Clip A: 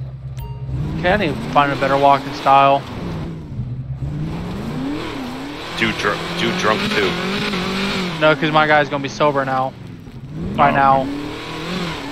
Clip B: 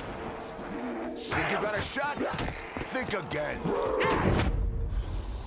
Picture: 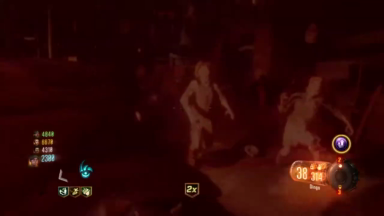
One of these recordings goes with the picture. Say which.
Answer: B